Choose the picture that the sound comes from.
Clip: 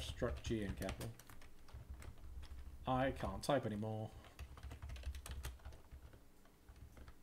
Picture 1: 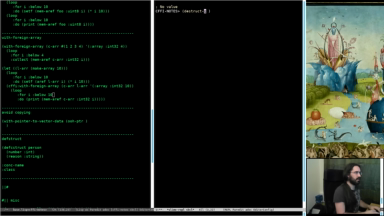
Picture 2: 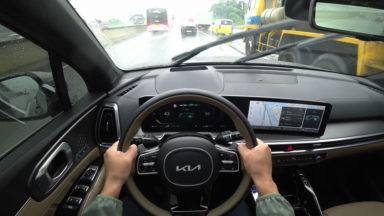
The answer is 1